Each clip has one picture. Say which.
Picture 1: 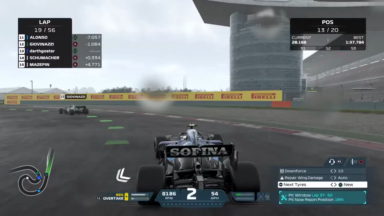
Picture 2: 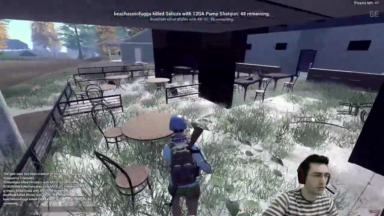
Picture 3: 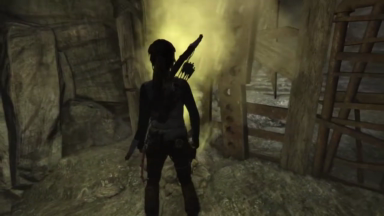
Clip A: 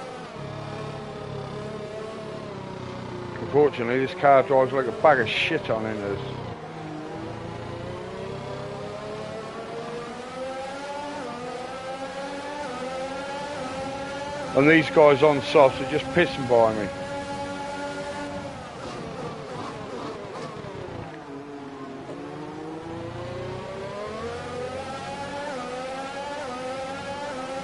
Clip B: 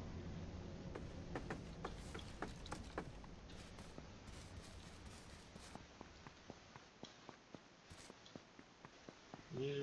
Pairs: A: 1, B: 2